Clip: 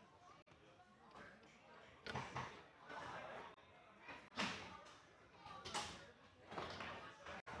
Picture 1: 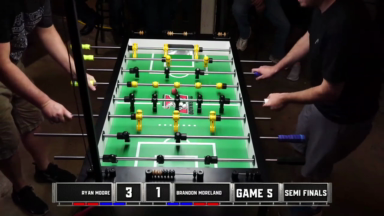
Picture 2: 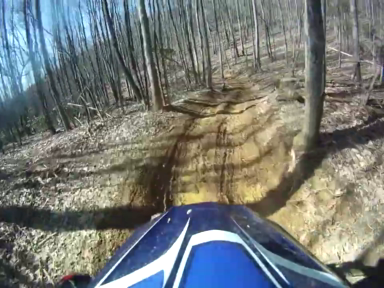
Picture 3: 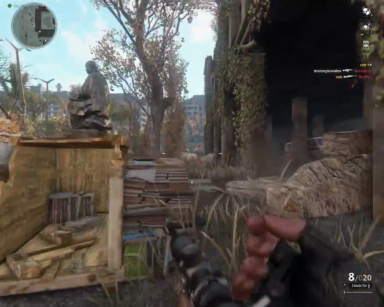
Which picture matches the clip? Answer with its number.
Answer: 1